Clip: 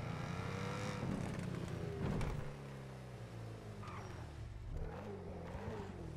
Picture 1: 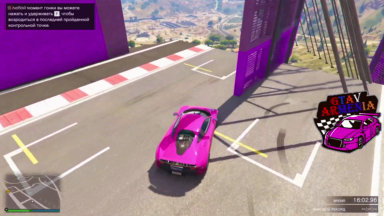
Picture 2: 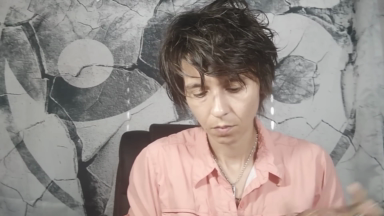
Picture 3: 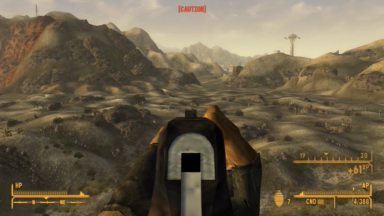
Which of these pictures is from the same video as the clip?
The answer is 1